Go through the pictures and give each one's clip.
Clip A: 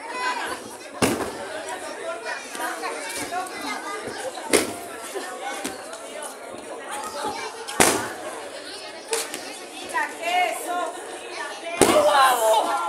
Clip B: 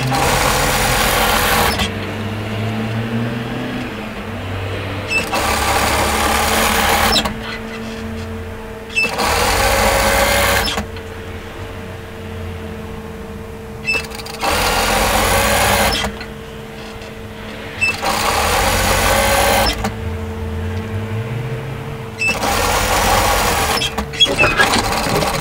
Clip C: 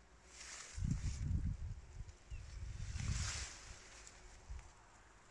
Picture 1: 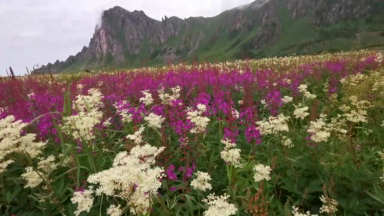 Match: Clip C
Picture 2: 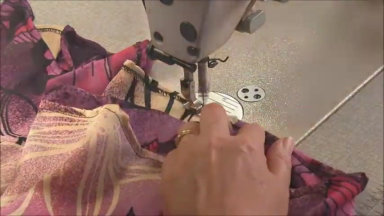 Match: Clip B